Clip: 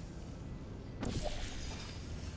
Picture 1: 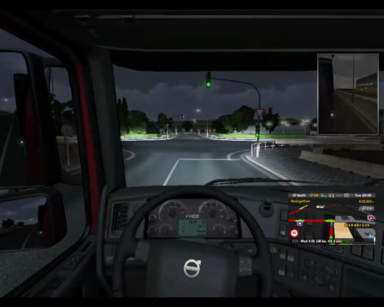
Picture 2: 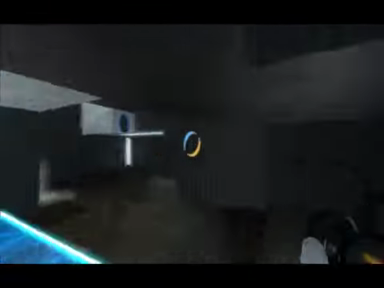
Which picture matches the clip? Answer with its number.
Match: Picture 2